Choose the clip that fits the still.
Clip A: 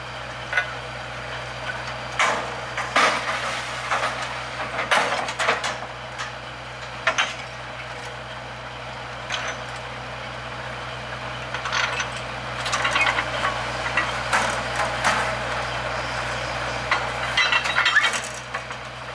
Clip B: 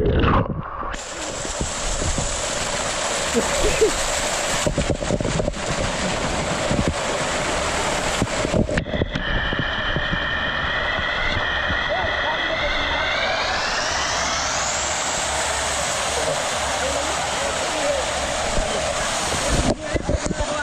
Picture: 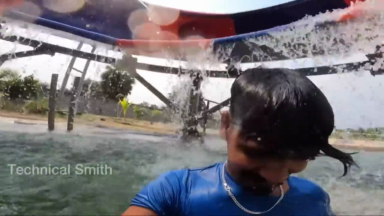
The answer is B